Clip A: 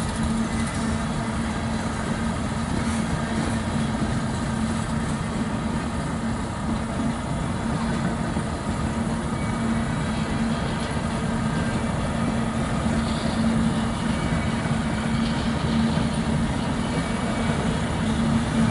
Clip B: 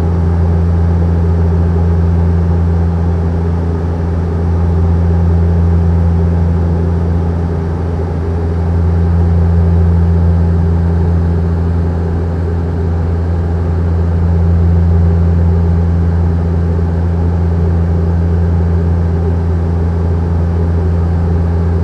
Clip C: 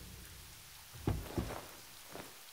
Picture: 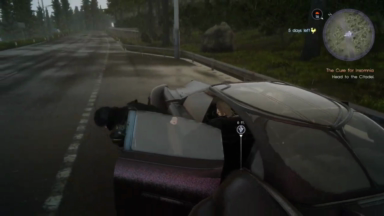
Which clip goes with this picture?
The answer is C